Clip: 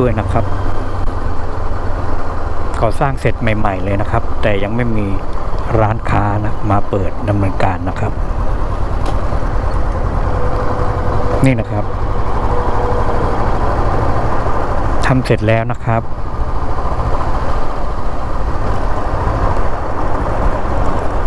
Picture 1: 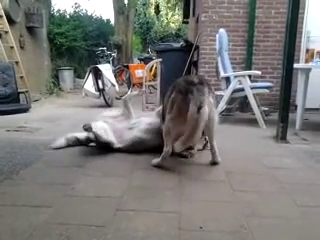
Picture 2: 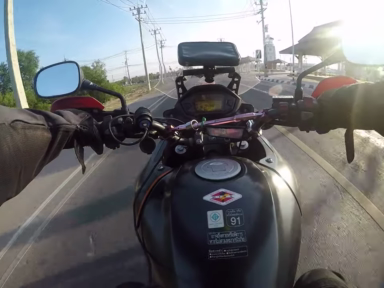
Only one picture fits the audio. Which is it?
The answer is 2